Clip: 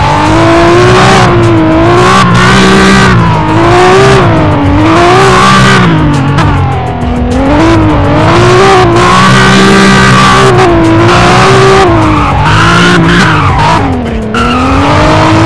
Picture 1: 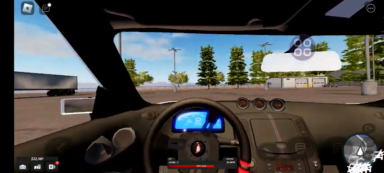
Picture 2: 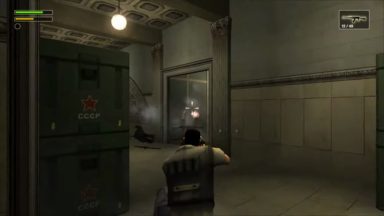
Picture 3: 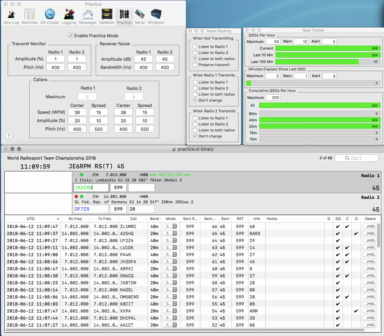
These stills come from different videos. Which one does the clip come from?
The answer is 1